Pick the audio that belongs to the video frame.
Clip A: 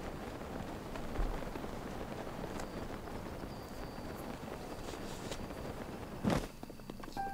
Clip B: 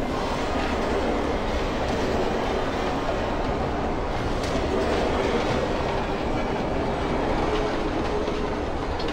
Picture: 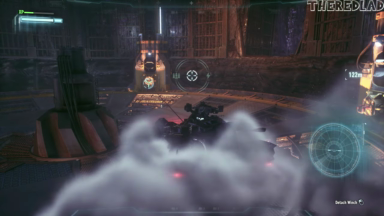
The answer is B